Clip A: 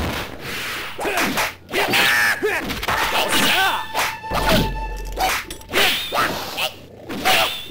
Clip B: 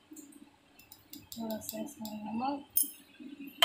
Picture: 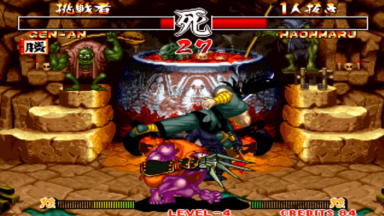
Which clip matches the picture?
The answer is A